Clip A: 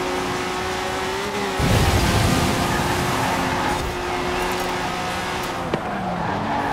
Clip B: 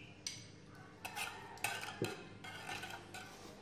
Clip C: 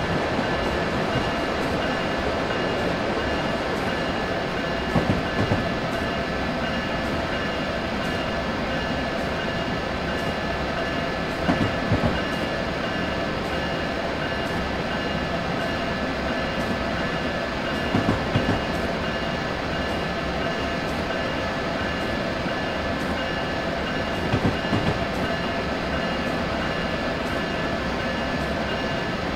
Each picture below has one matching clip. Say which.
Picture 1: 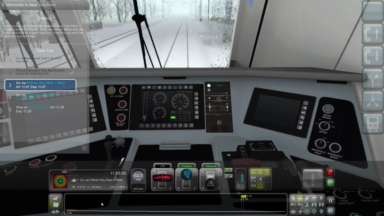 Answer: C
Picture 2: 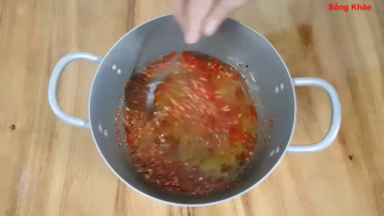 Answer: B